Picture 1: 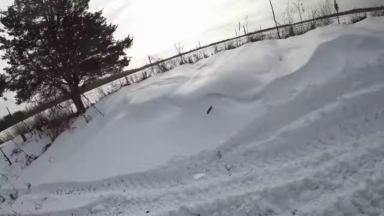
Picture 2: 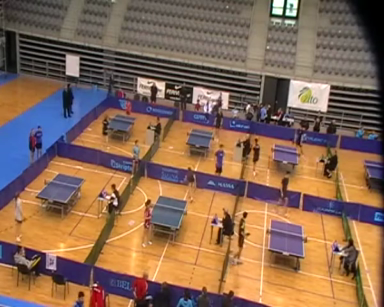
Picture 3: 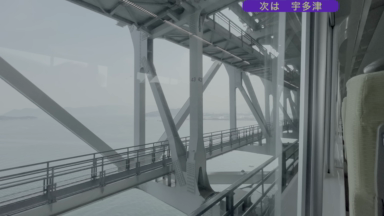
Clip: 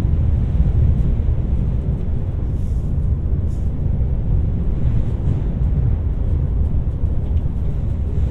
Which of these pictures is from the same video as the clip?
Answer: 3